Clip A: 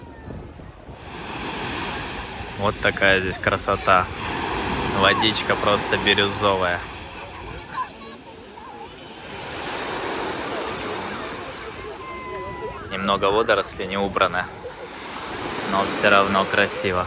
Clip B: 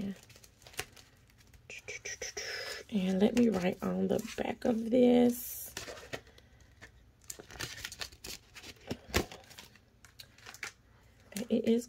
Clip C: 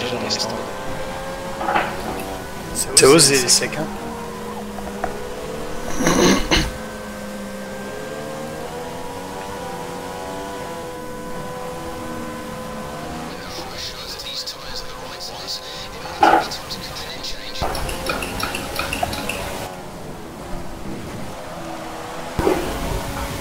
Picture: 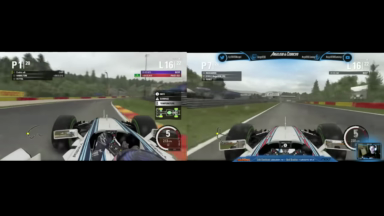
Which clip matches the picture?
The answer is C